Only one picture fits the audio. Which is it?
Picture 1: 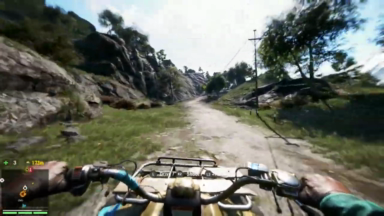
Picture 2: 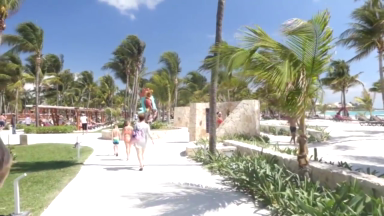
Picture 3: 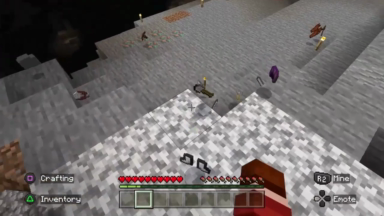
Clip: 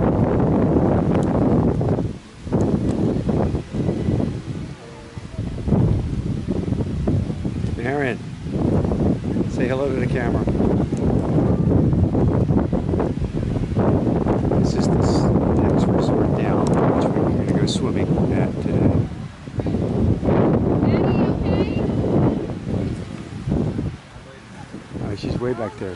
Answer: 2